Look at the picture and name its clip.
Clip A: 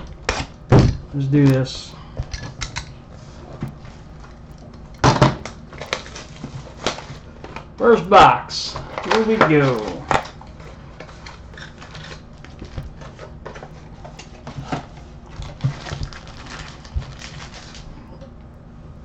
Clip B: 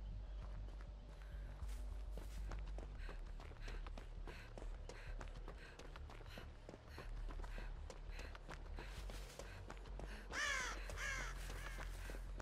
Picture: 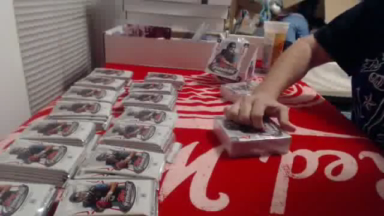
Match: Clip A